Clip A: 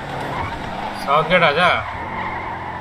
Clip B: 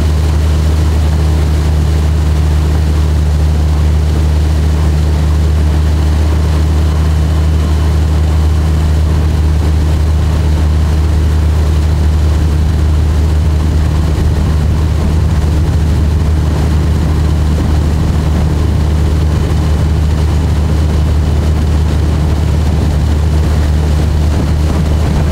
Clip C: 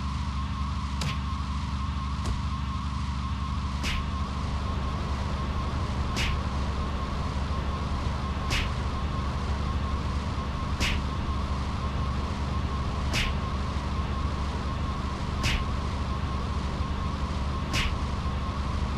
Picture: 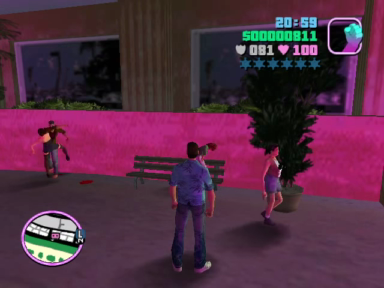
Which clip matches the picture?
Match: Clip C